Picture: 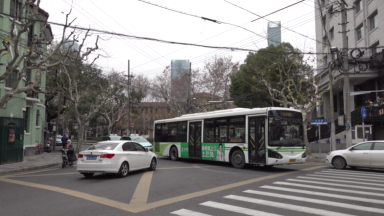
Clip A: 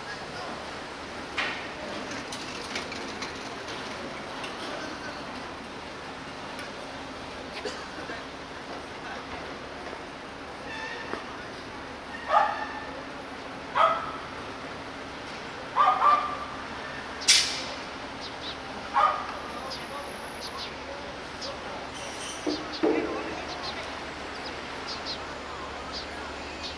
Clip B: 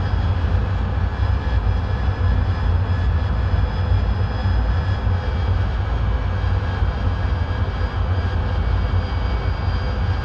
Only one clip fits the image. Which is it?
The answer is A